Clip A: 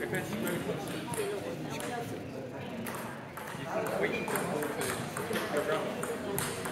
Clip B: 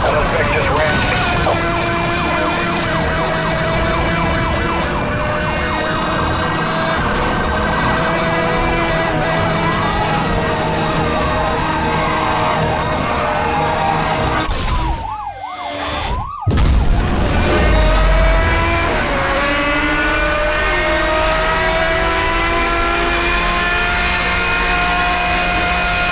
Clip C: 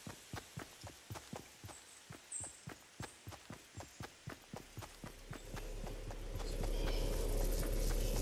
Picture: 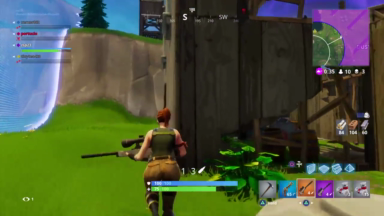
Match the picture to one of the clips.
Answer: C